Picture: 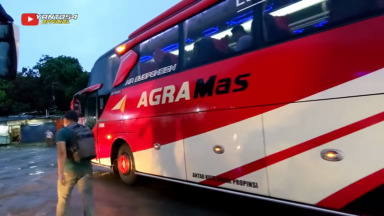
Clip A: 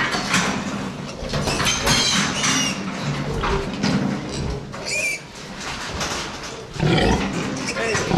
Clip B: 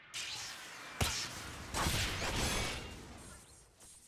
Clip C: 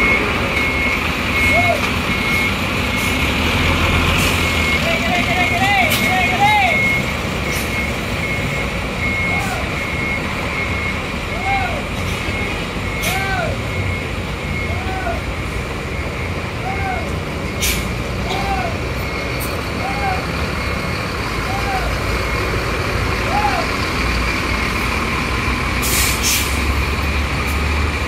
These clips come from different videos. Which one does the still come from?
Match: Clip C